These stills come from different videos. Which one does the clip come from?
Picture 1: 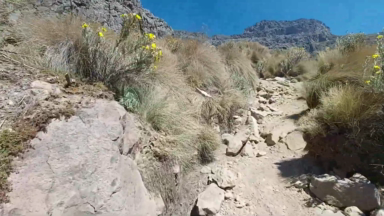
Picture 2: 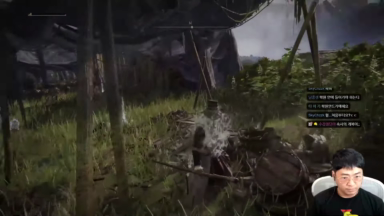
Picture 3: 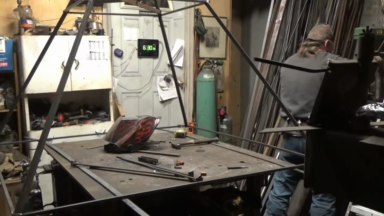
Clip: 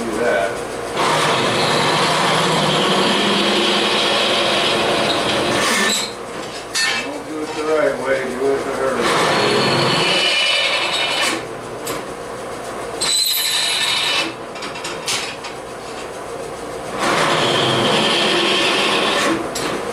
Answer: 3